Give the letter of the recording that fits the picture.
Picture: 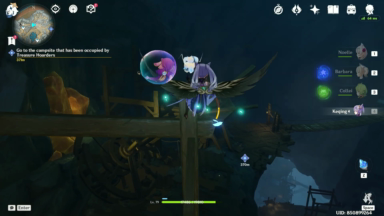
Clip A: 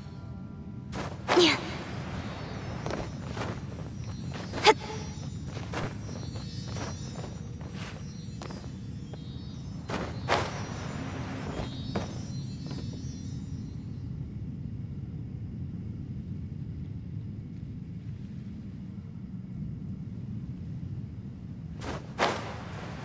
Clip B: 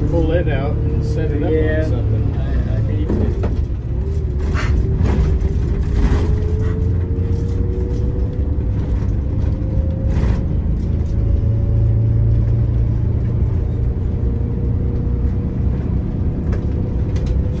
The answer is A